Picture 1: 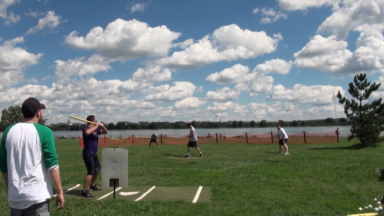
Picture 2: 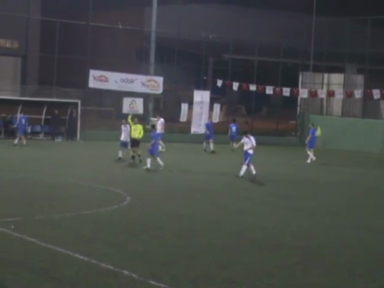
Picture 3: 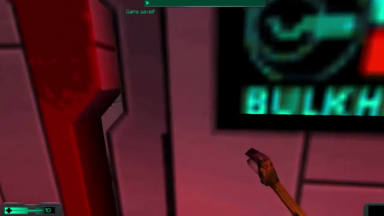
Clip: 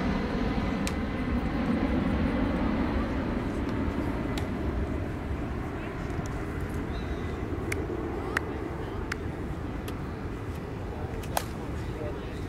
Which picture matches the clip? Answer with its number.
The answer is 1